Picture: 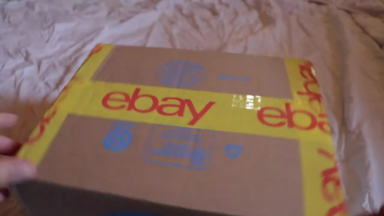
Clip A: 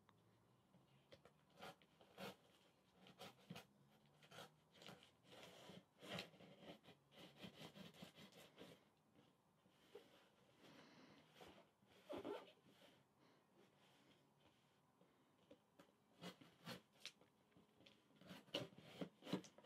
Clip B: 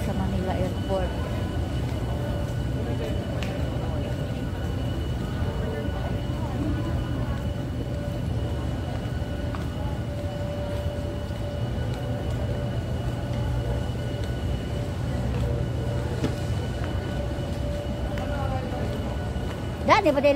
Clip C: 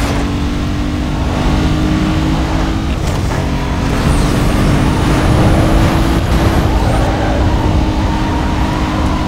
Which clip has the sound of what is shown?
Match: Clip A